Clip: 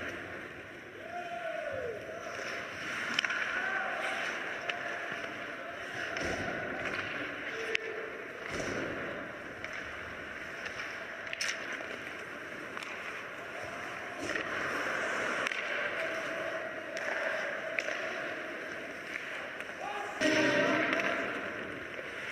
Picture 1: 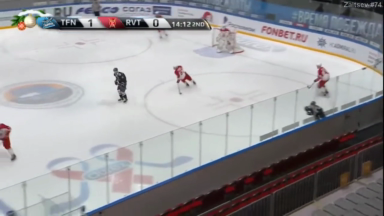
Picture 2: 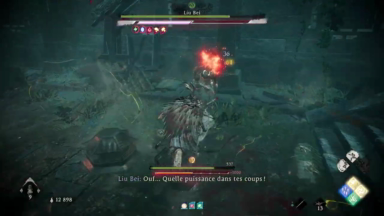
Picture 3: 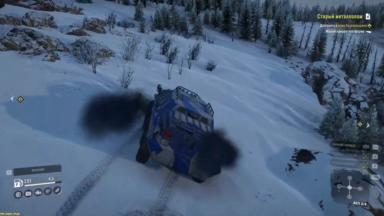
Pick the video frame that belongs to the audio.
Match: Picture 1